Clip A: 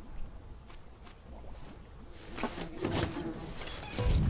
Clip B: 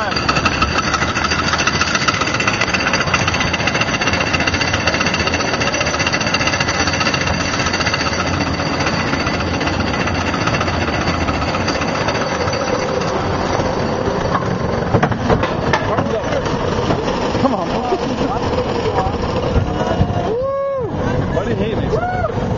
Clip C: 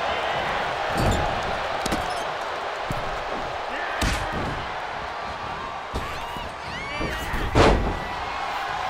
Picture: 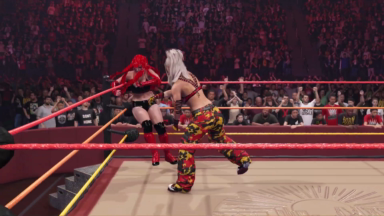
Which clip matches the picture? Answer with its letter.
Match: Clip C